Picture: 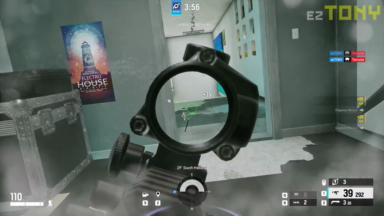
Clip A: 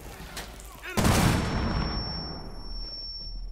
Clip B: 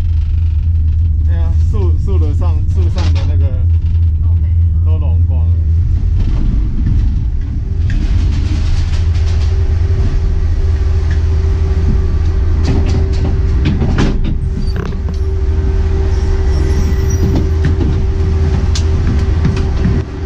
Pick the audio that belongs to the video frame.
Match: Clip A